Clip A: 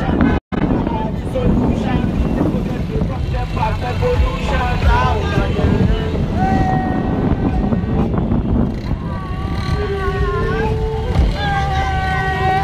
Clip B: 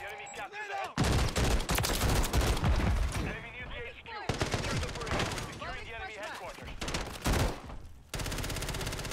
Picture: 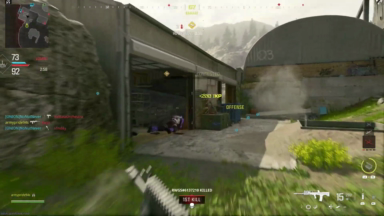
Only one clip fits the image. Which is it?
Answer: B